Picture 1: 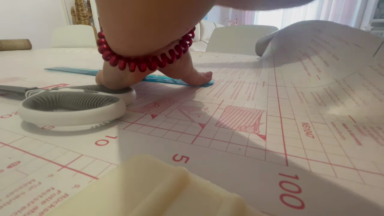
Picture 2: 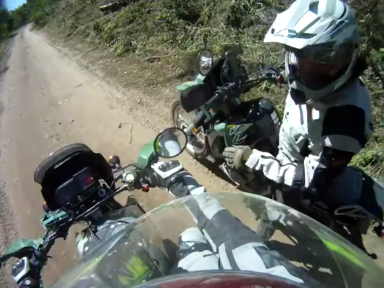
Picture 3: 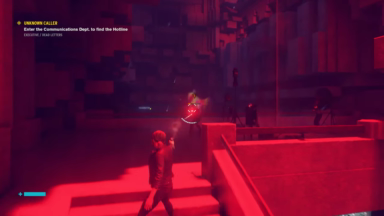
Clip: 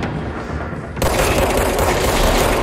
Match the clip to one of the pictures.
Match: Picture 3